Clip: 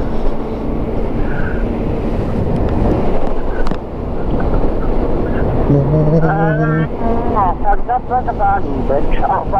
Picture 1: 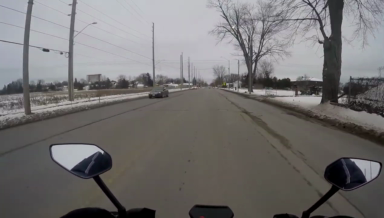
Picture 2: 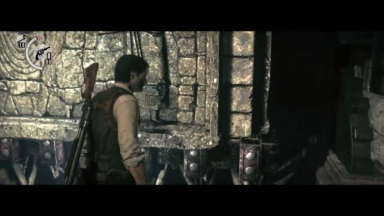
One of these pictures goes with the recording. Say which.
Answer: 1